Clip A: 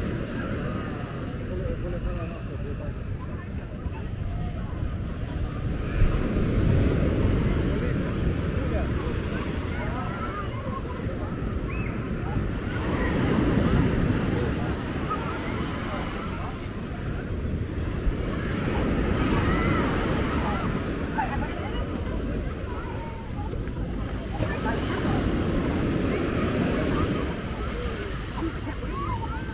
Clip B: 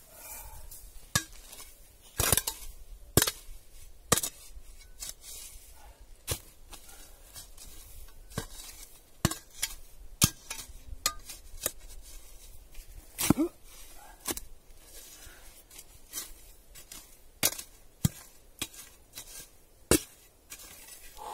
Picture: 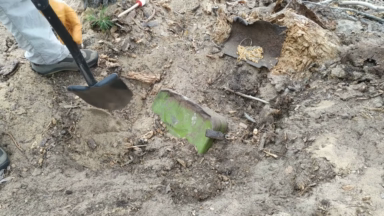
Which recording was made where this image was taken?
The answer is B